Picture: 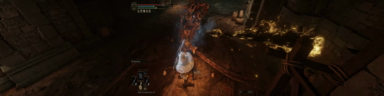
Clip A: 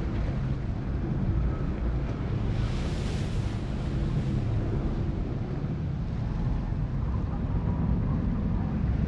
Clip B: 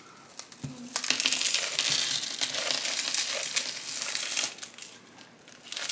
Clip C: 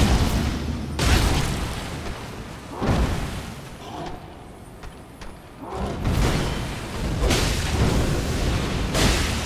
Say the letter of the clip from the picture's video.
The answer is C